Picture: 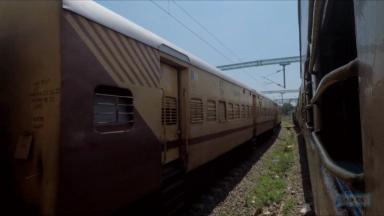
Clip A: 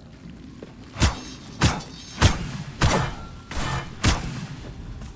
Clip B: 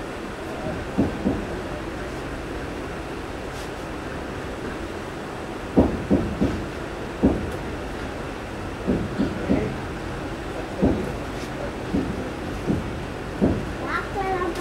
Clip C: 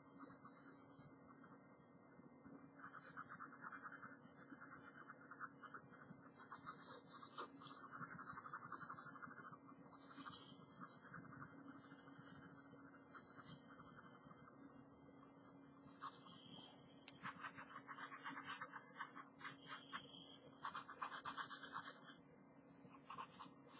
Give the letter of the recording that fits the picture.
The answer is B